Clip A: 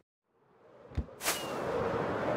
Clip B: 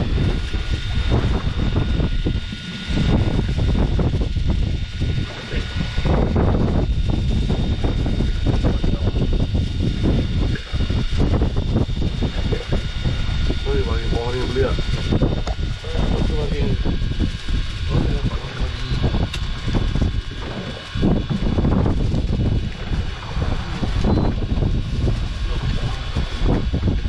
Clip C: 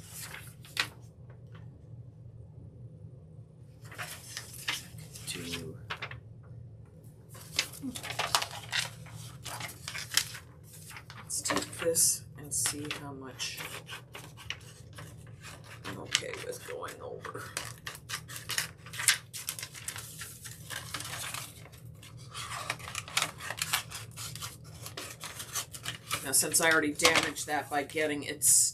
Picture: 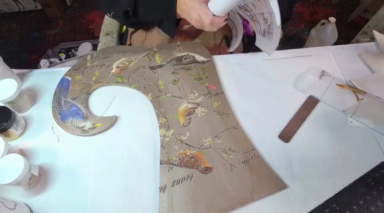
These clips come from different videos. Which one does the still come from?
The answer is C